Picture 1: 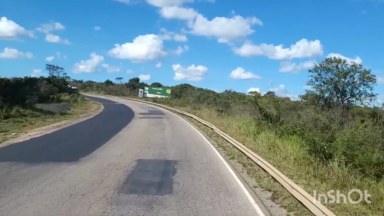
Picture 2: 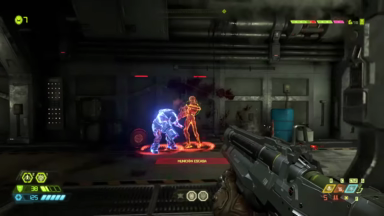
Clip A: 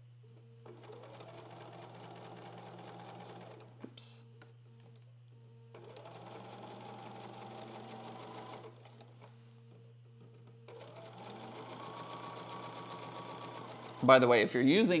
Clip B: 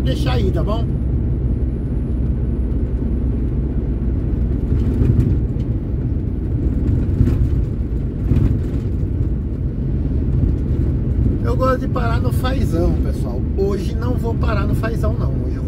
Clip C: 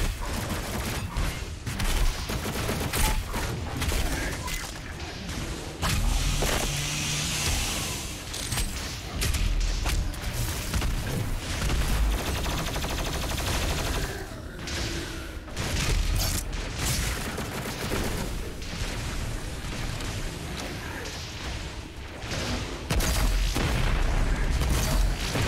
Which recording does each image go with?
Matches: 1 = B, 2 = C